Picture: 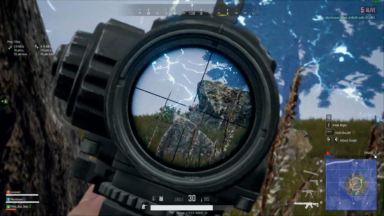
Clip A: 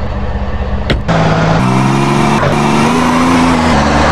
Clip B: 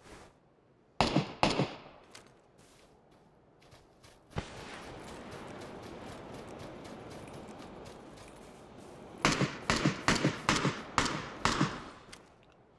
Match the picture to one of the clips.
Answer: B